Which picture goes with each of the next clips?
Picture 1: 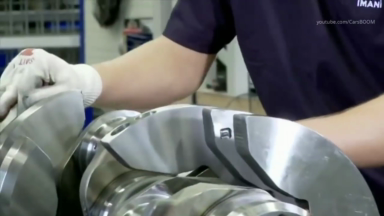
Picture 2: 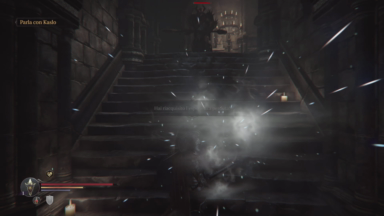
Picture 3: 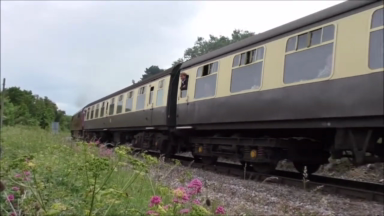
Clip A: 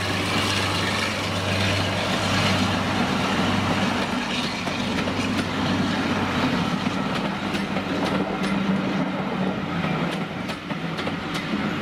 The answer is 3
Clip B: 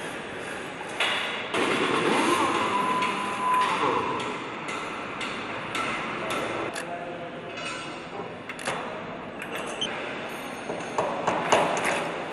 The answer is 1